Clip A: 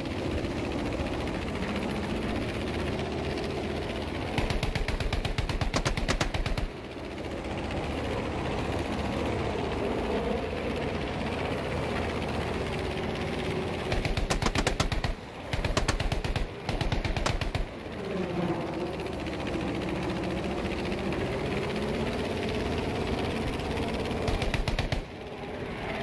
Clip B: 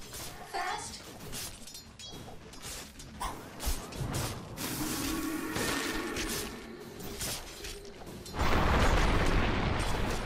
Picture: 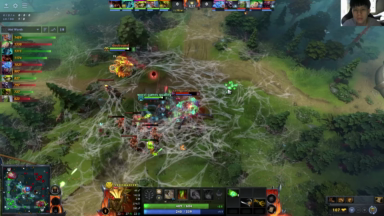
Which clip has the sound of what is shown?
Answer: B